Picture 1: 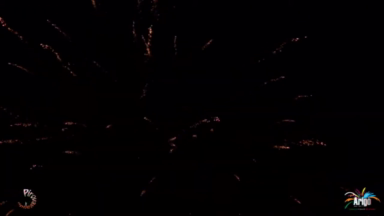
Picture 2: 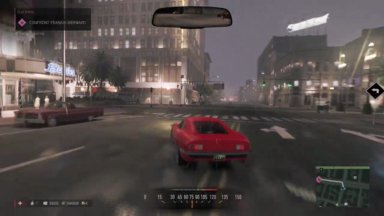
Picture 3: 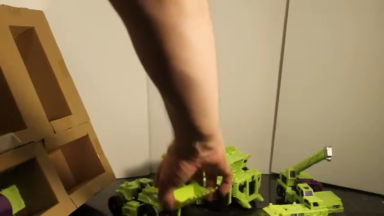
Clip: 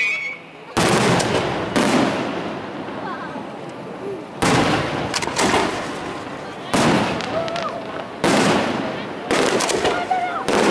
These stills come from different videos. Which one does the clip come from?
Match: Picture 1